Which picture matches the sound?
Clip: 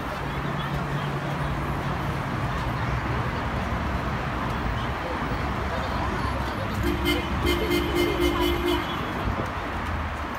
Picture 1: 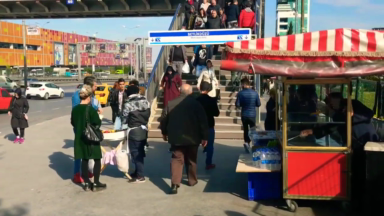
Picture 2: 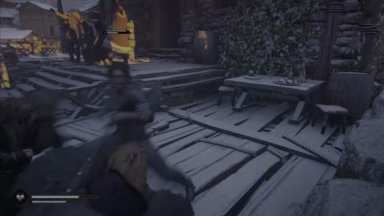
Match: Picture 1